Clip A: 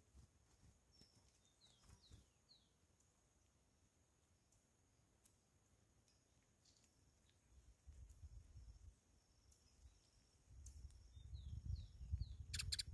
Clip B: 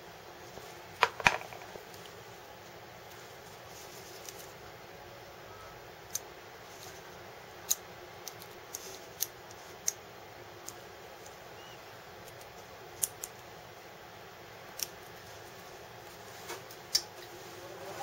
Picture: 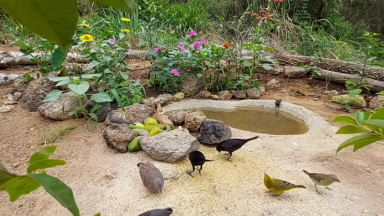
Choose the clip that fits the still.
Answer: A